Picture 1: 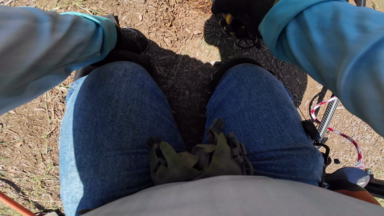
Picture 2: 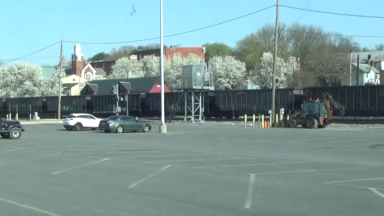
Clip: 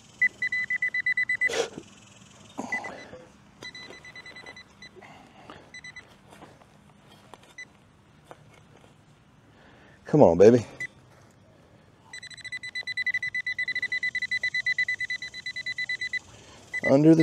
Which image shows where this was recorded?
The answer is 1